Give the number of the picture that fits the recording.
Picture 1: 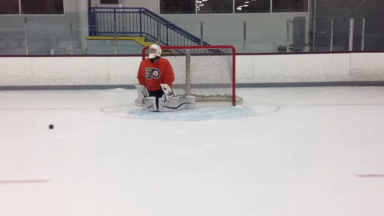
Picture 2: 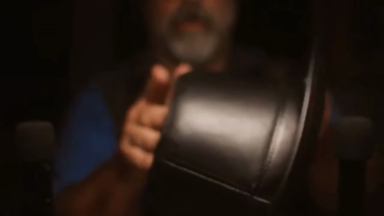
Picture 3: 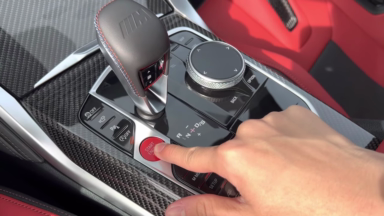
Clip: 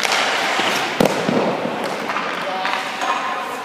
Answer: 1